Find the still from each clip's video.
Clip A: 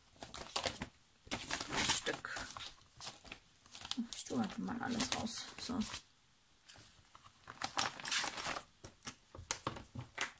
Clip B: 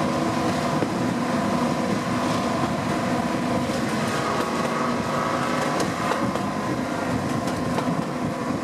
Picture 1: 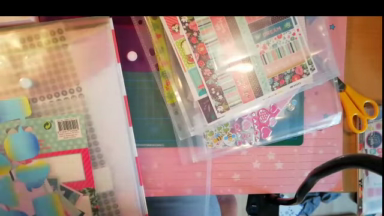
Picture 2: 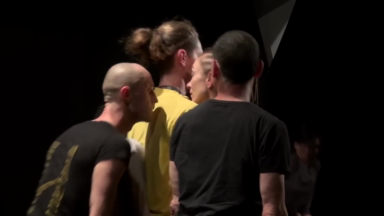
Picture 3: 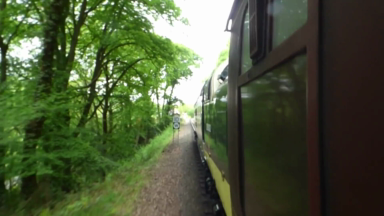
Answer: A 1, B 3